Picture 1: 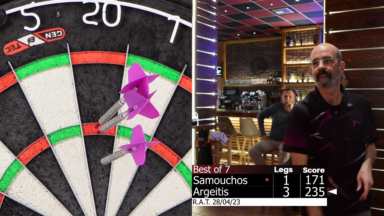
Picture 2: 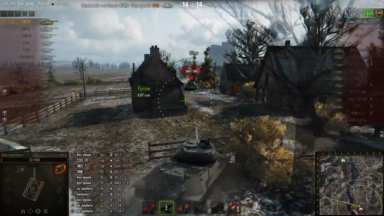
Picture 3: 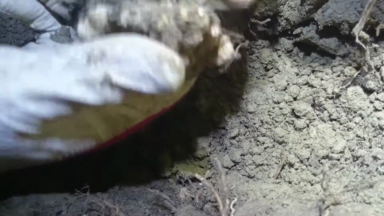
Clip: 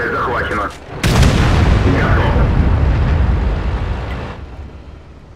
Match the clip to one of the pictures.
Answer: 2